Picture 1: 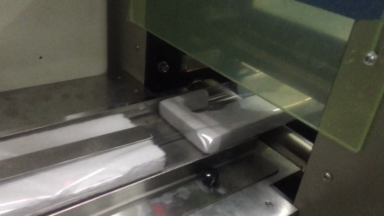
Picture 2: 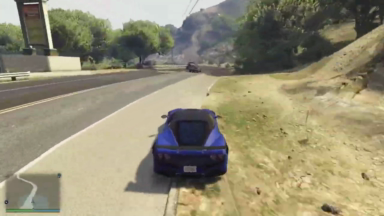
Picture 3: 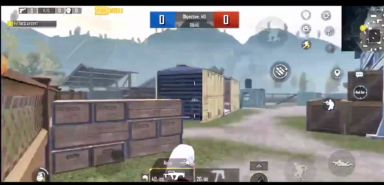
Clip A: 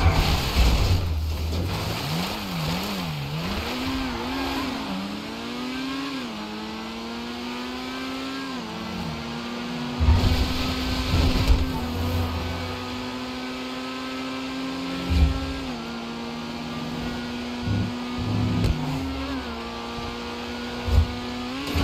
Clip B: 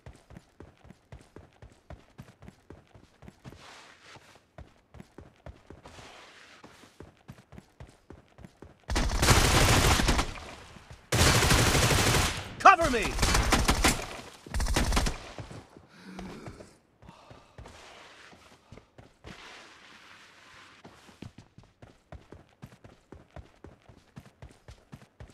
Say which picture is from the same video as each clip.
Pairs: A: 2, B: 3